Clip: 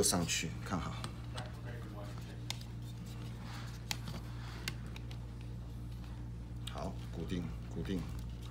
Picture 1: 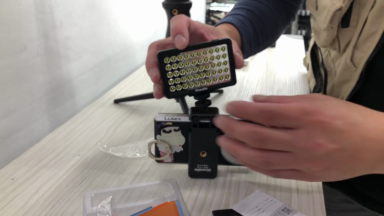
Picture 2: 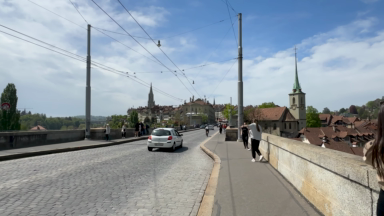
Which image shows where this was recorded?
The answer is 1